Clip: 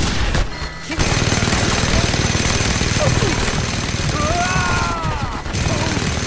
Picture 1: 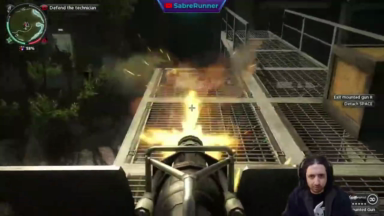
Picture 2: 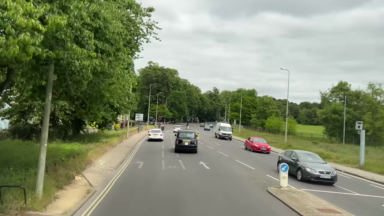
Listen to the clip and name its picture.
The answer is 1